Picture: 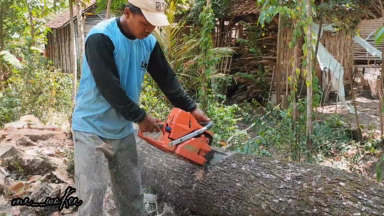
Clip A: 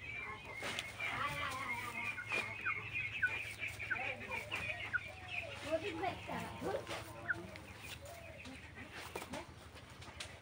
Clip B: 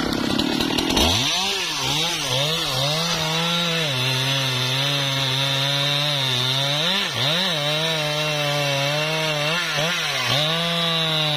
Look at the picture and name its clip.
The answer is B